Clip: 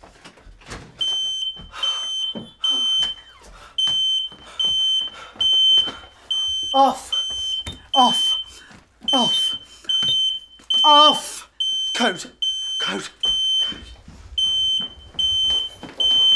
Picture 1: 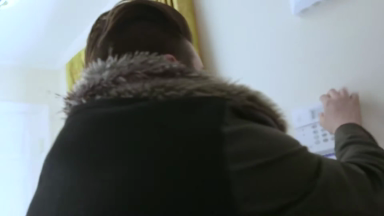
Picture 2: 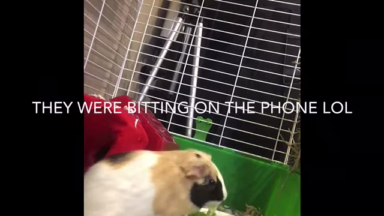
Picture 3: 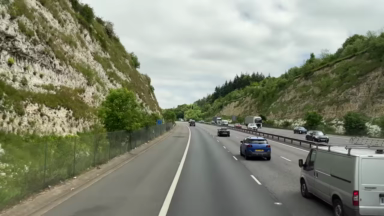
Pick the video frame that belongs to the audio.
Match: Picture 1